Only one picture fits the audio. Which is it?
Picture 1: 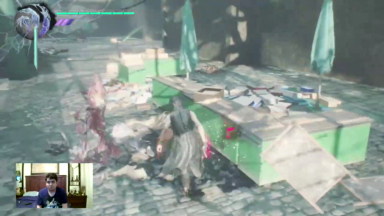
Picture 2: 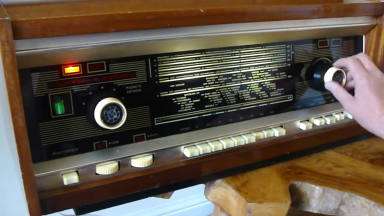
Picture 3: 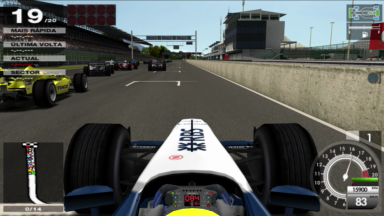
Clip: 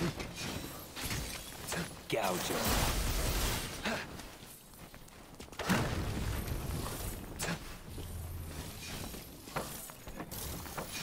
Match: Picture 1